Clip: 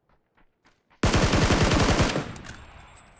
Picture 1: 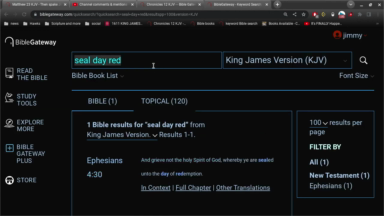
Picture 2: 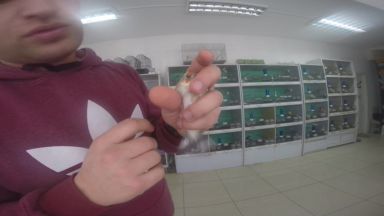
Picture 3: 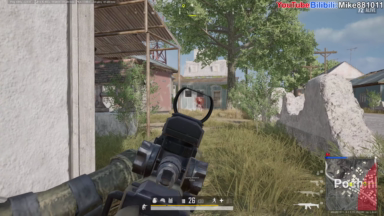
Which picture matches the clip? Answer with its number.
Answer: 3